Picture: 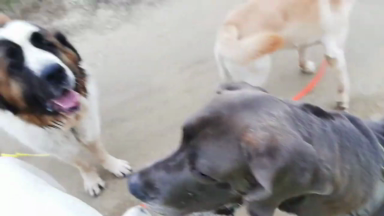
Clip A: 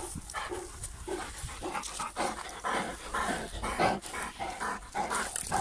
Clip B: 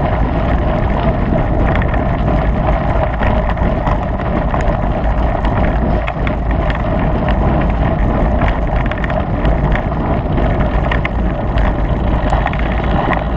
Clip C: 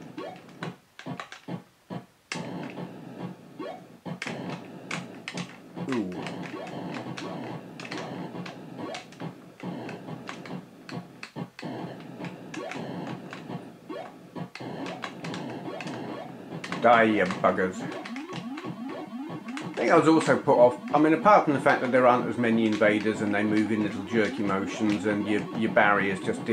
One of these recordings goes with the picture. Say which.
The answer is A